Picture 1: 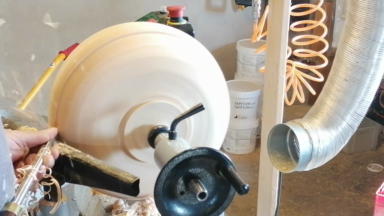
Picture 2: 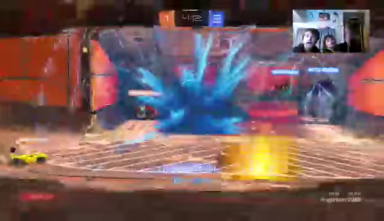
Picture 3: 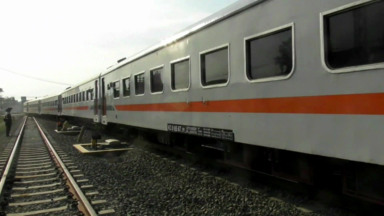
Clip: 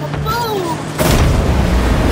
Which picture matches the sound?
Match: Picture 2